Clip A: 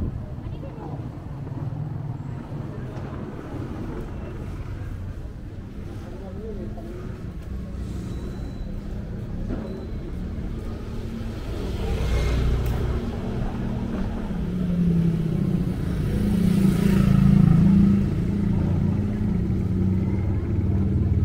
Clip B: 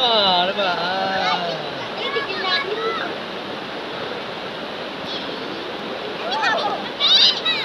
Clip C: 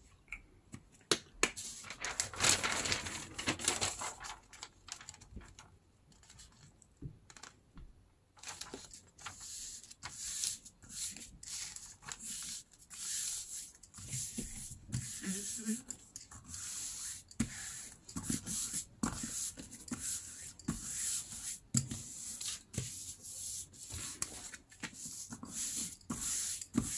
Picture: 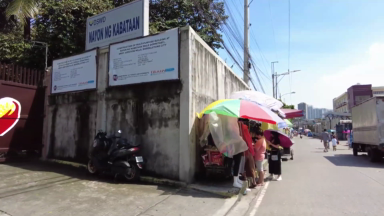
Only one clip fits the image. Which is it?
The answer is A